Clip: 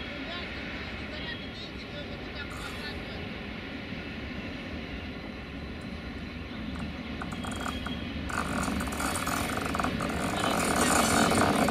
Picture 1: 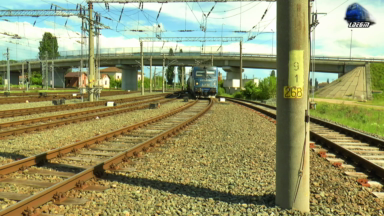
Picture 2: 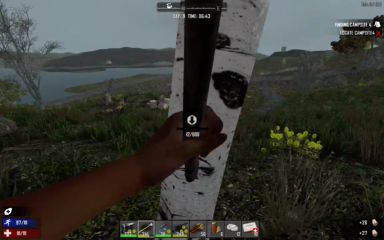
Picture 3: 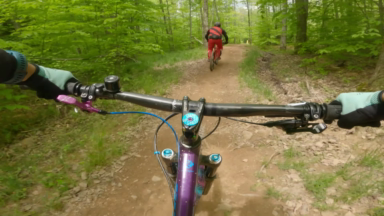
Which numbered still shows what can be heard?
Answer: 1